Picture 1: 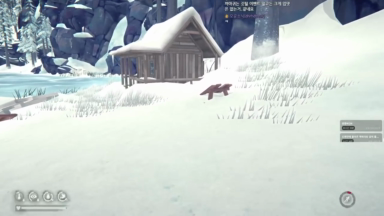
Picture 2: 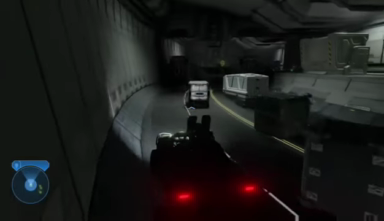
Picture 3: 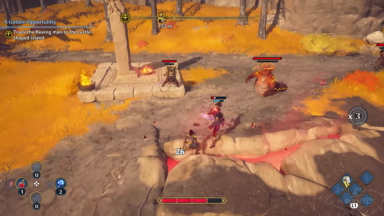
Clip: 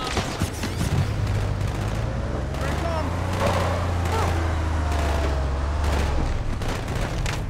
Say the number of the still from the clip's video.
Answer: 2